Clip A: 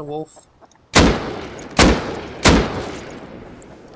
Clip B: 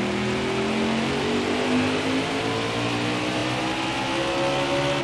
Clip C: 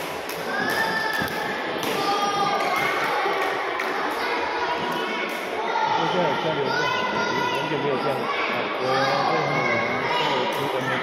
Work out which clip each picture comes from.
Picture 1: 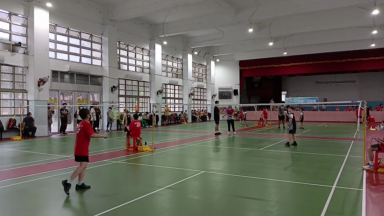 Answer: C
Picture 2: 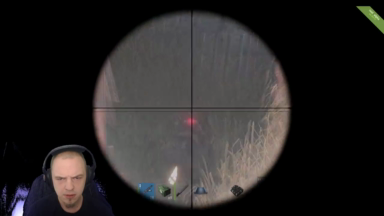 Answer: A